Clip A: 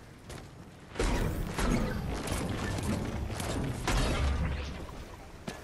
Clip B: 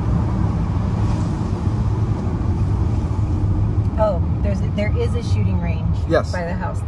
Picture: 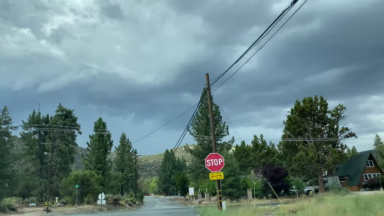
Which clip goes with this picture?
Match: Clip B